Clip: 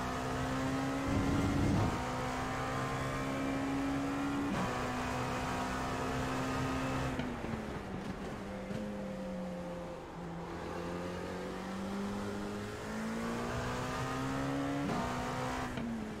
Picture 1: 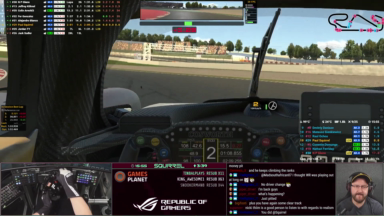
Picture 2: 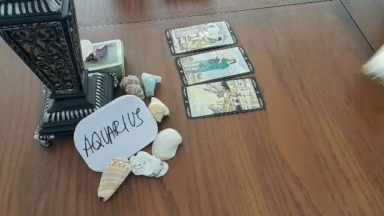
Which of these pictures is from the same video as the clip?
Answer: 1